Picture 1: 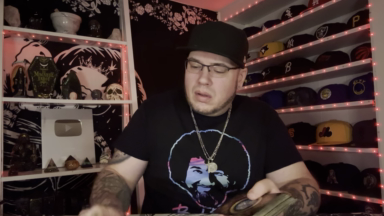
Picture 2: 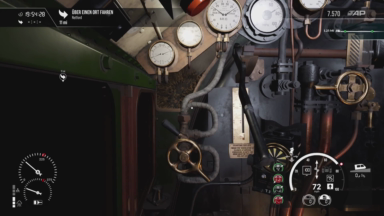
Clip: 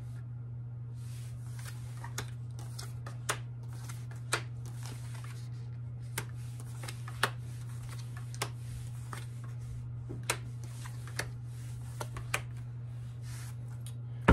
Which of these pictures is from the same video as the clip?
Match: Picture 1